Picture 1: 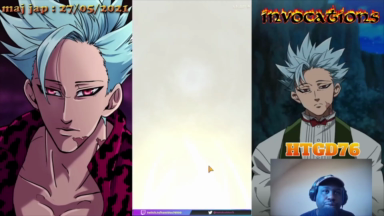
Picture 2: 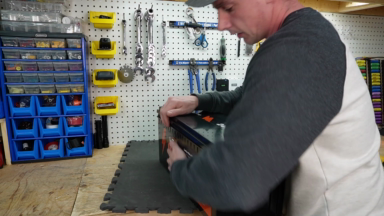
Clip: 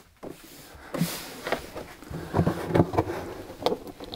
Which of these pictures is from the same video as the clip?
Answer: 2